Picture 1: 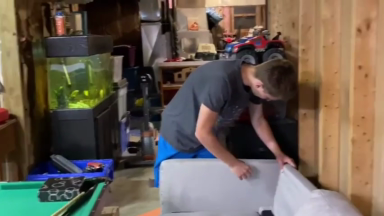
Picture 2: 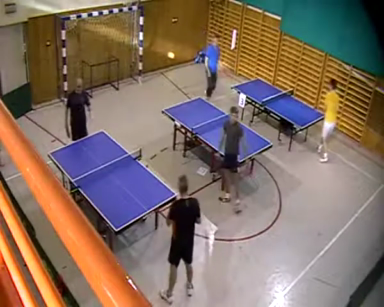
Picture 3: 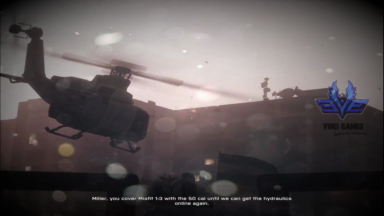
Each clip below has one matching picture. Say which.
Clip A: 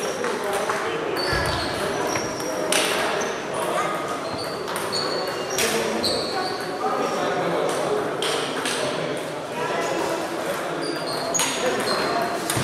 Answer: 2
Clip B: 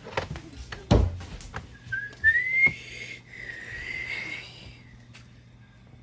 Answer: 1